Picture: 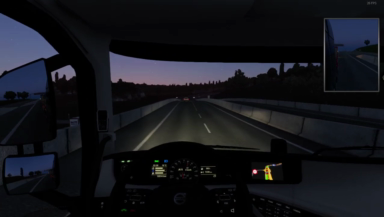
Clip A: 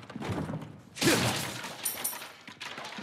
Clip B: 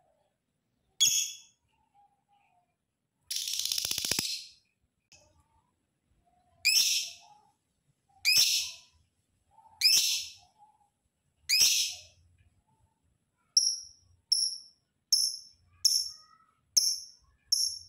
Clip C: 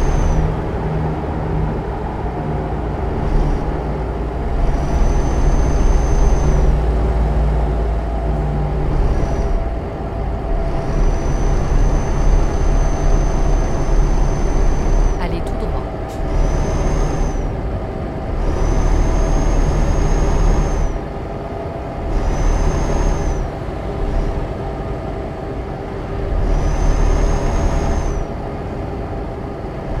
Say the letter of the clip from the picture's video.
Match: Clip C